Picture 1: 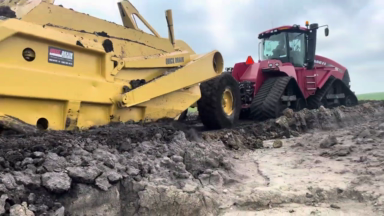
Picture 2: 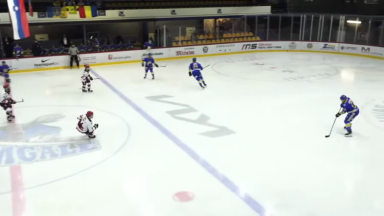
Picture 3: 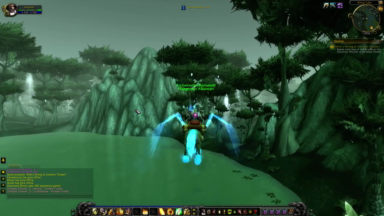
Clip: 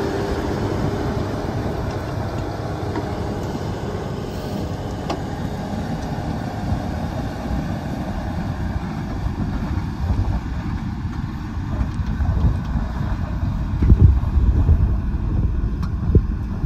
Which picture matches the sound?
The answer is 1